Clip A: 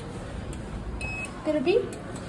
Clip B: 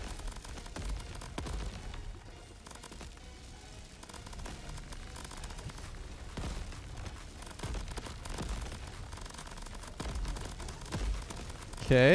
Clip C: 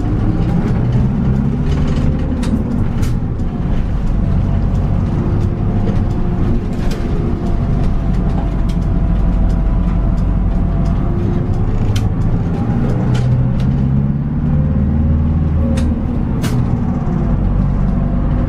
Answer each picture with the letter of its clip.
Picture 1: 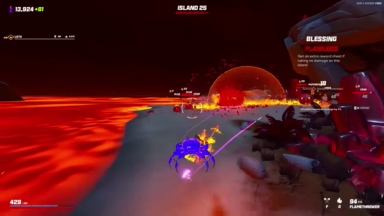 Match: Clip B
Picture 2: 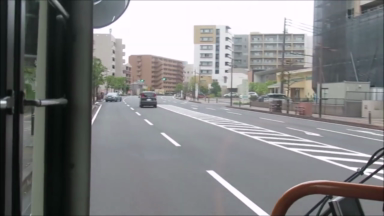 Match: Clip C